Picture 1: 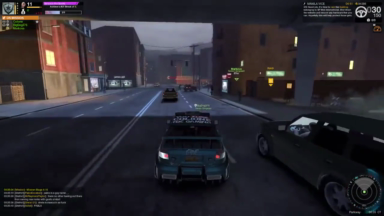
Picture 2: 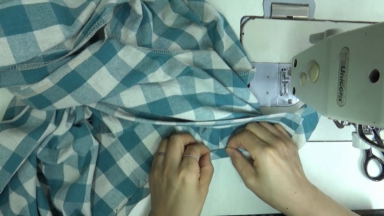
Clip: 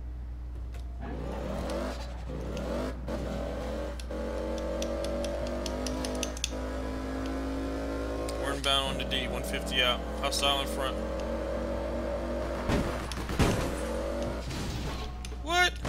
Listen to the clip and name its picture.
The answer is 1